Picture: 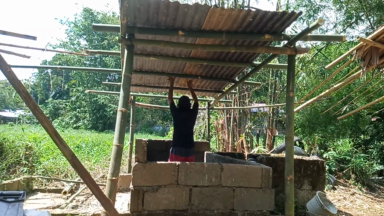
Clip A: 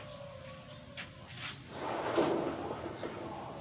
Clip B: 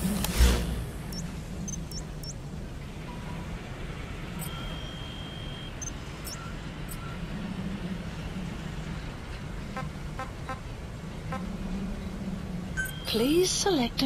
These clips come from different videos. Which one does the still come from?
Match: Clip A